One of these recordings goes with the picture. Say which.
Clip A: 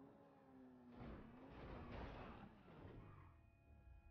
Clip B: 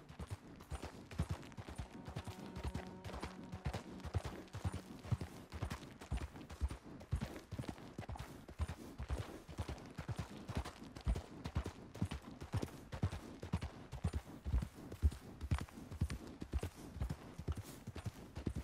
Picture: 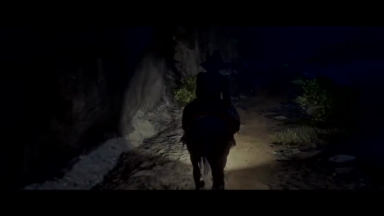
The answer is B